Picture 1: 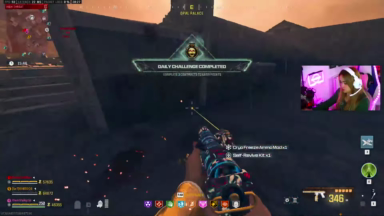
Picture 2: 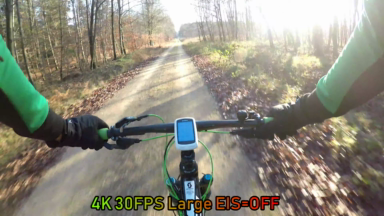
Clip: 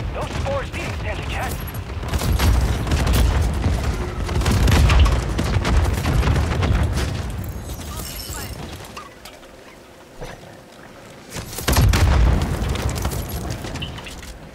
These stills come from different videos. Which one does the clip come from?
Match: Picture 1